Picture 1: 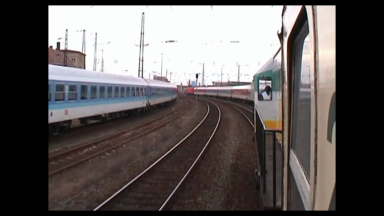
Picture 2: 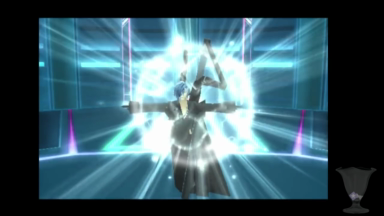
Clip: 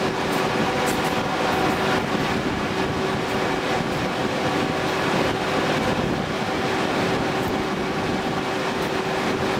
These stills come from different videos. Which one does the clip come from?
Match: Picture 1